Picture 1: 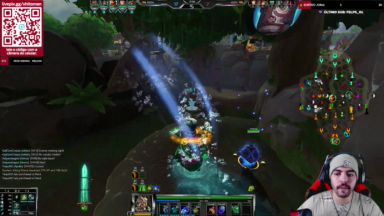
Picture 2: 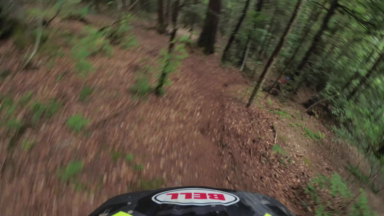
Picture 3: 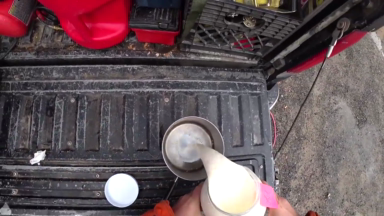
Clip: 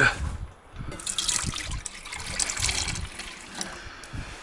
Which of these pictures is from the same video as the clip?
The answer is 3